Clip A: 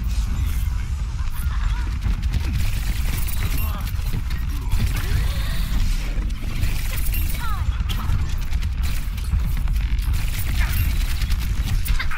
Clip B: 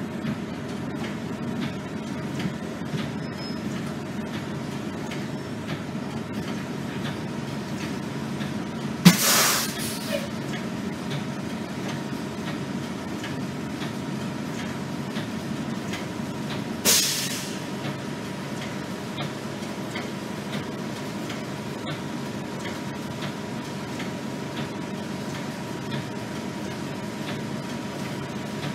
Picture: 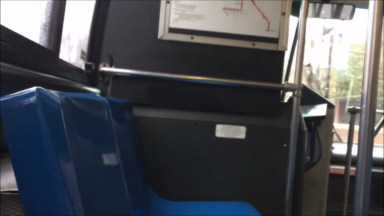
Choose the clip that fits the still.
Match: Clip B